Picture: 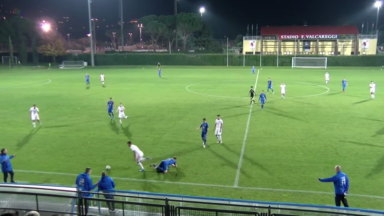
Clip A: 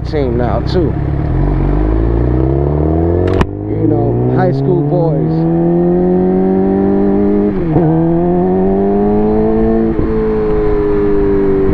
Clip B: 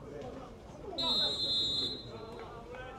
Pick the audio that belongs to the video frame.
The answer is B